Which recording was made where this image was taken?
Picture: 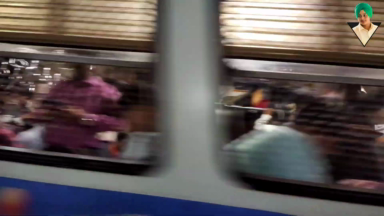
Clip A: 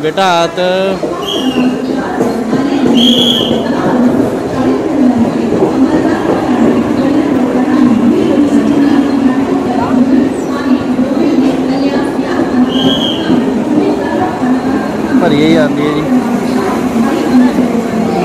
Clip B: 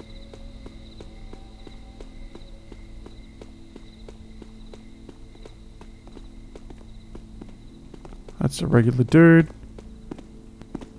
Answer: A